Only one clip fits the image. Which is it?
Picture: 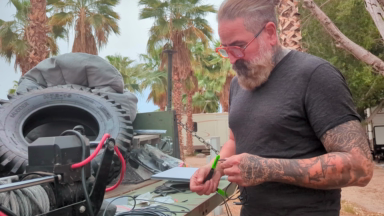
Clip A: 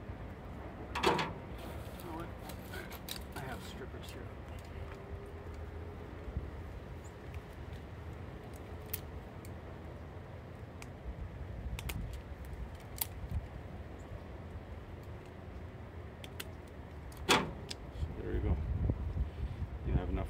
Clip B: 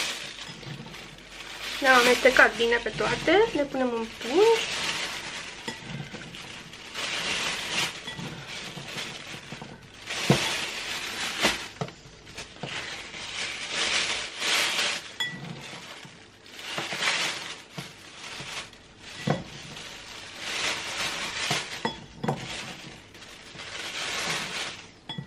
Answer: A